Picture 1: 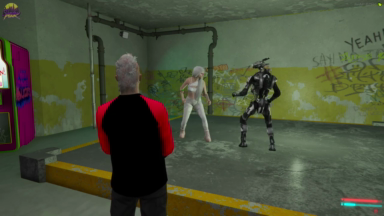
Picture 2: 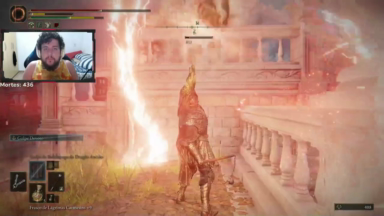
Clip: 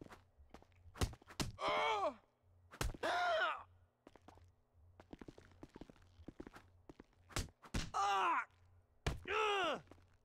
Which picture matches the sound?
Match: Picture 1